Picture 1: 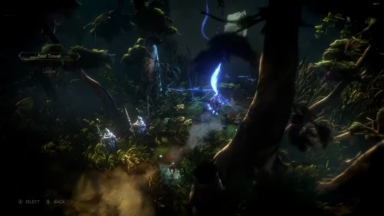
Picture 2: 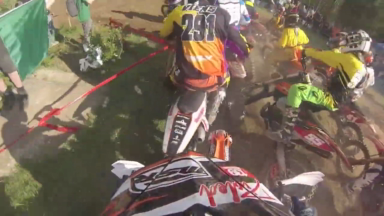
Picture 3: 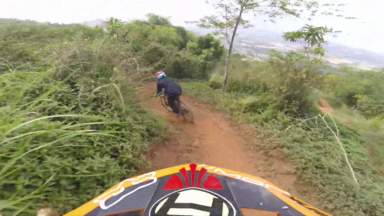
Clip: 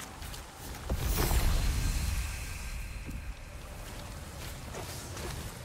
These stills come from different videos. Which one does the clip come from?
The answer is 1